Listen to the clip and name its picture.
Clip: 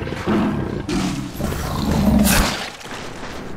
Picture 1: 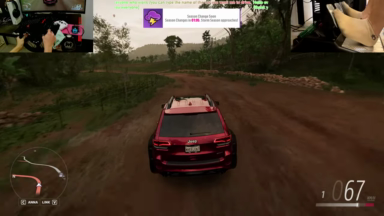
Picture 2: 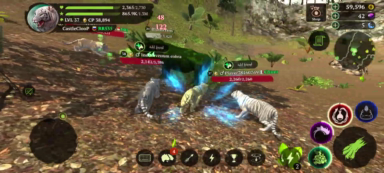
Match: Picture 2